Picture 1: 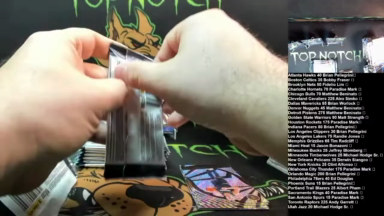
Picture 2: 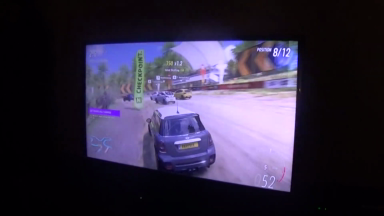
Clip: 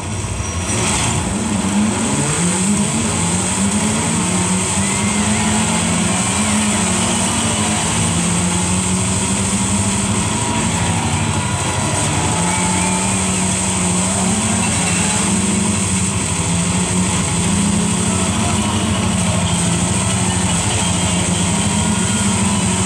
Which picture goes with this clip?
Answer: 2